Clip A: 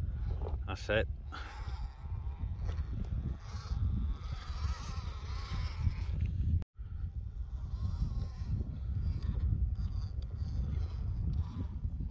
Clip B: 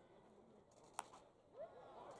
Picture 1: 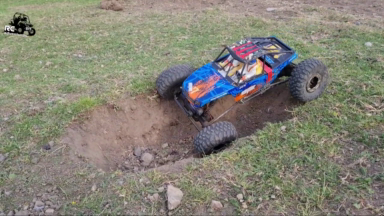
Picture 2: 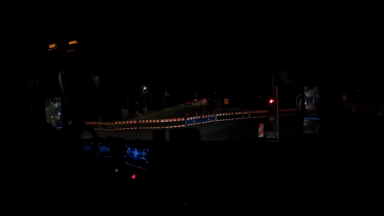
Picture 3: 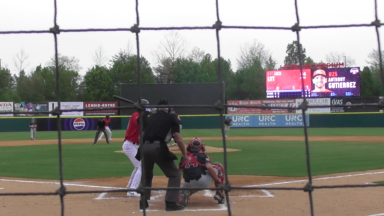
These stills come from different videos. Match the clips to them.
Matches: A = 1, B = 3